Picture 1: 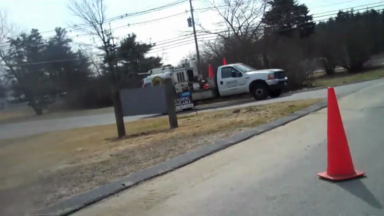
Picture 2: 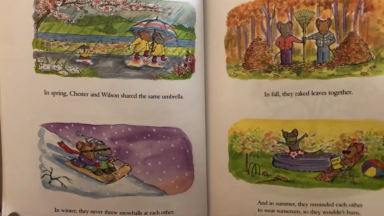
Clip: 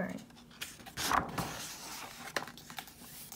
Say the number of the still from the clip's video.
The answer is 2